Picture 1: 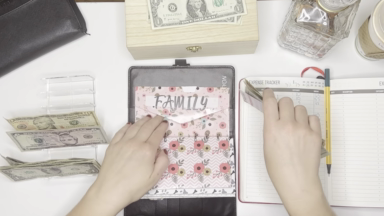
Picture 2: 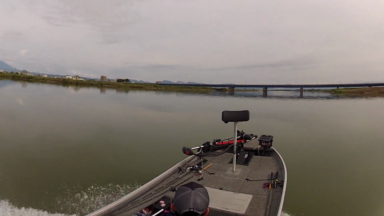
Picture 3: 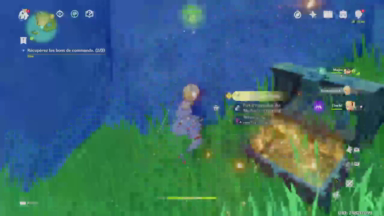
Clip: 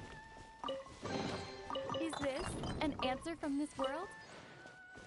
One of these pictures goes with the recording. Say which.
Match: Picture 3